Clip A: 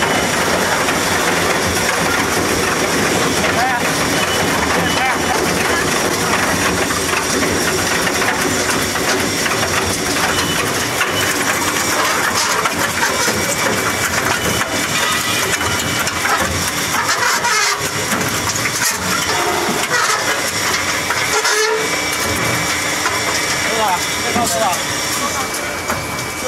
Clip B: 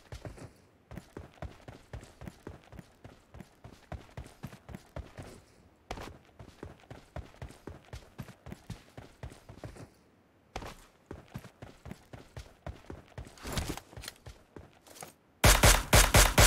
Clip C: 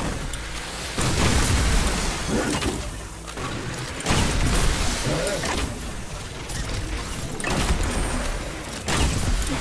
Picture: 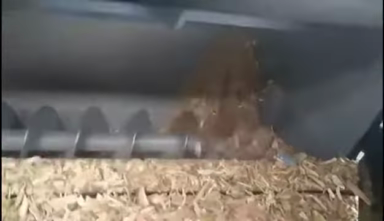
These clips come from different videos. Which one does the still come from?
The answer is A